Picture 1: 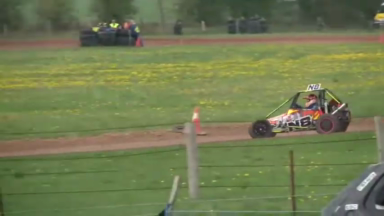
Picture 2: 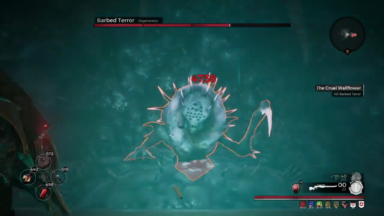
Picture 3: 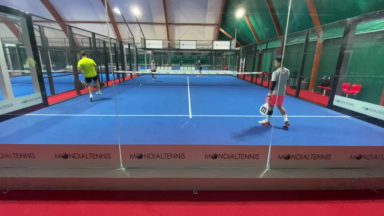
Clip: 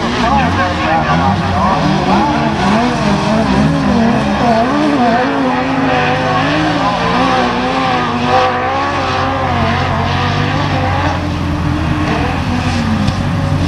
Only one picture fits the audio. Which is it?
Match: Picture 1